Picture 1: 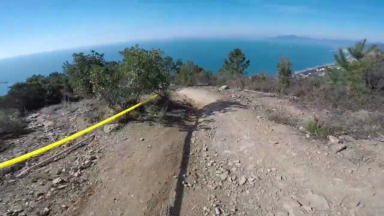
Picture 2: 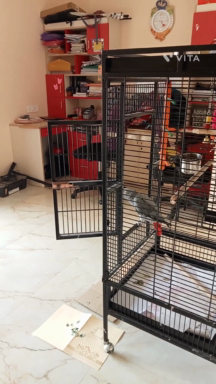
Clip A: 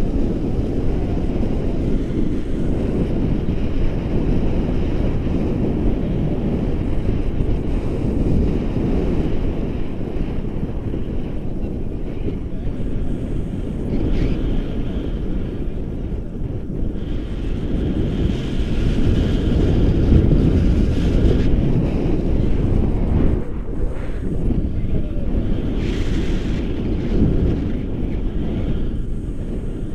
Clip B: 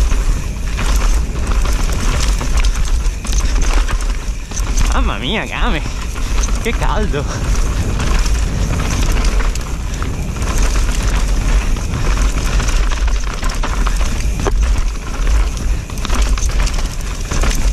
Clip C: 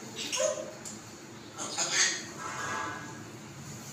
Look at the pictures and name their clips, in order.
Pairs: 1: B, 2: C